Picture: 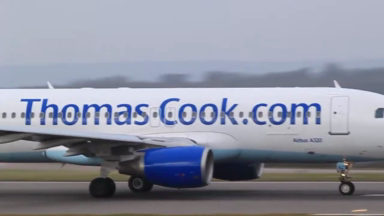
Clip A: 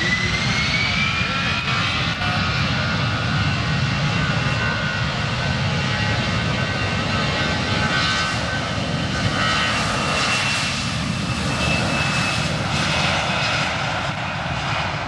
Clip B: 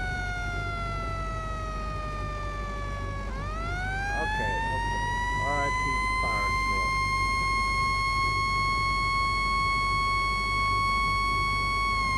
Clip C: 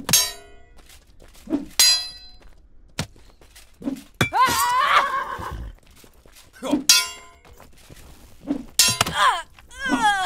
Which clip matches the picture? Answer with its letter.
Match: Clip A